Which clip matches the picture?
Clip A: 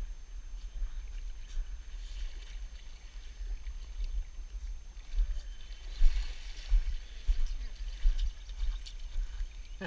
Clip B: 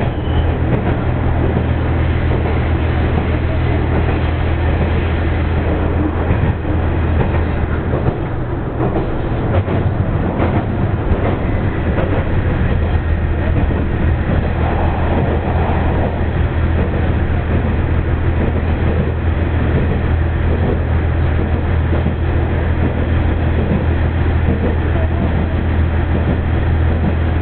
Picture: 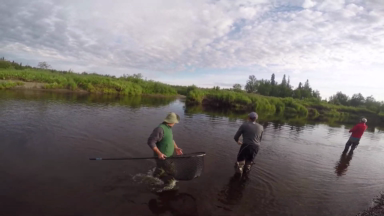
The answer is A